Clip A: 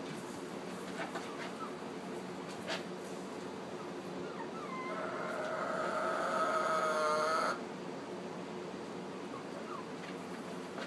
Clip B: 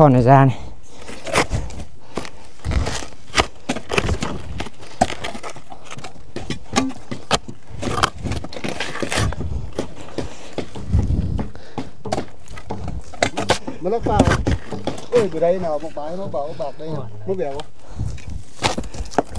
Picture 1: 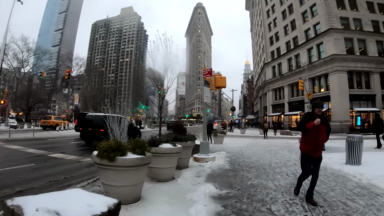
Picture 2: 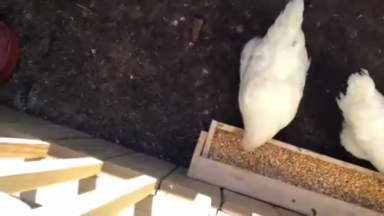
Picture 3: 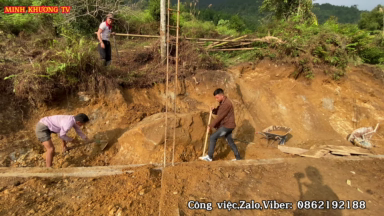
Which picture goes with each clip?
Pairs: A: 2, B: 3